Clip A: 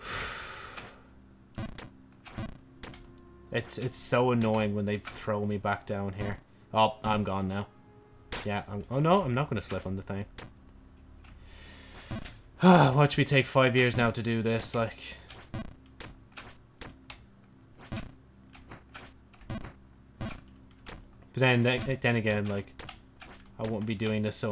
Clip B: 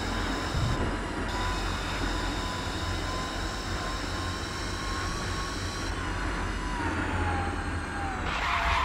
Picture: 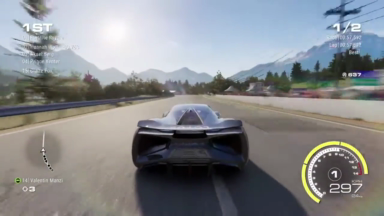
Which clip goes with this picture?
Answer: B